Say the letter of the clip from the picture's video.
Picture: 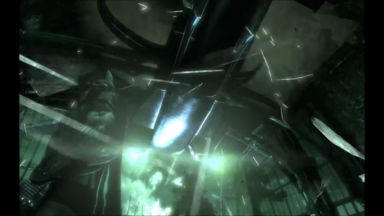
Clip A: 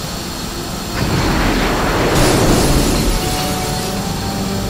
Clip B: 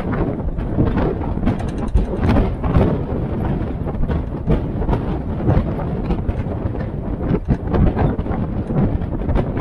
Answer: A